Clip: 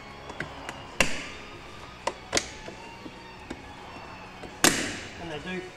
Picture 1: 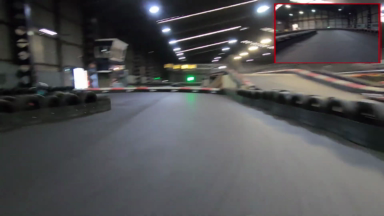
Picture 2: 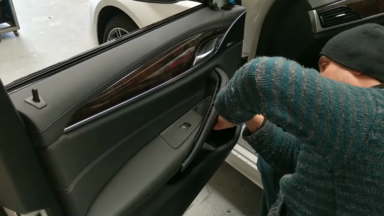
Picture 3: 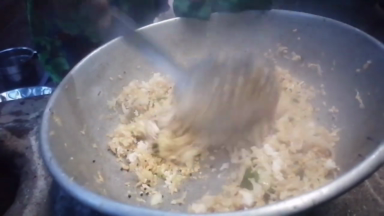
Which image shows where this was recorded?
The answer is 2